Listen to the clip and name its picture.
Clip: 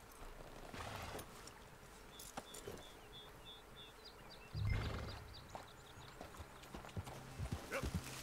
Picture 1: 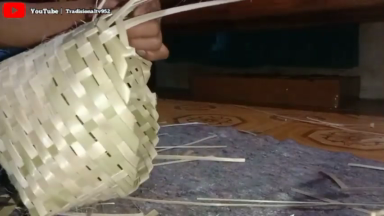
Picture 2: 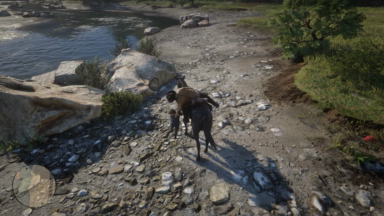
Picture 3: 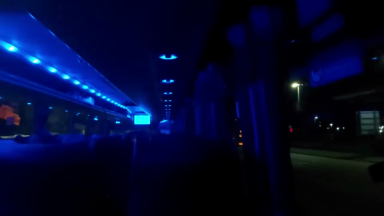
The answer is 2